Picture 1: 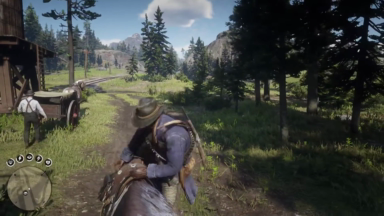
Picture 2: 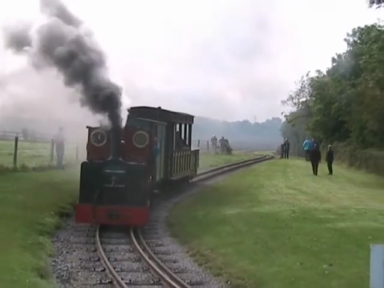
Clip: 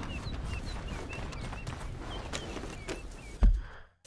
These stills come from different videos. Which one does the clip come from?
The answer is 1